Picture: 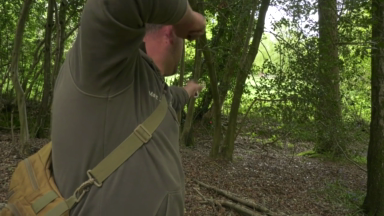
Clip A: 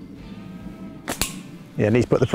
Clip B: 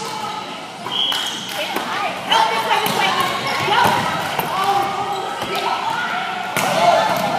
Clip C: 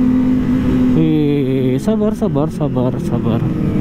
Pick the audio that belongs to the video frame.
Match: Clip A